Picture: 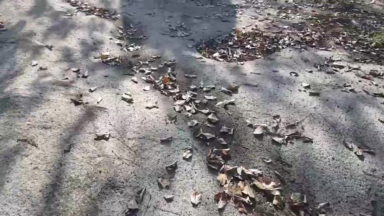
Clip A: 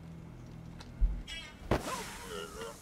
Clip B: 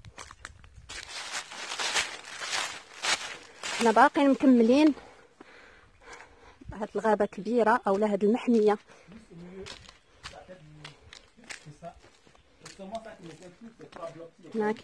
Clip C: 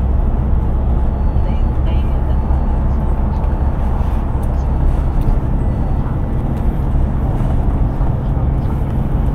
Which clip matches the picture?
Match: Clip B